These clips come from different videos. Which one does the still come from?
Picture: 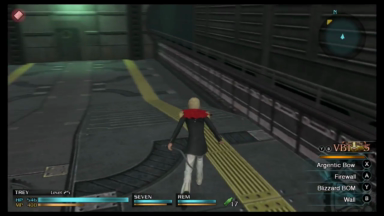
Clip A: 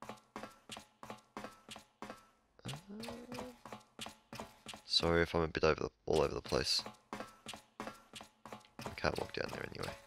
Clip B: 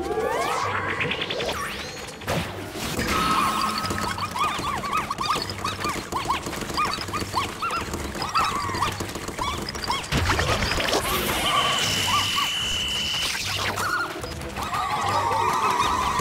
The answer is A